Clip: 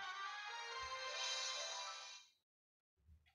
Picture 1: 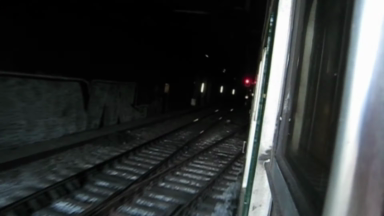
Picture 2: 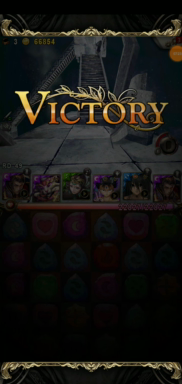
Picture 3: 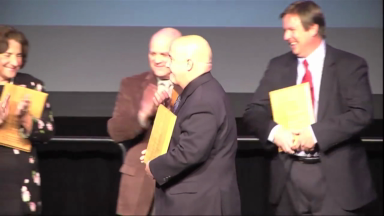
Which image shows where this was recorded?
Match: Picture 2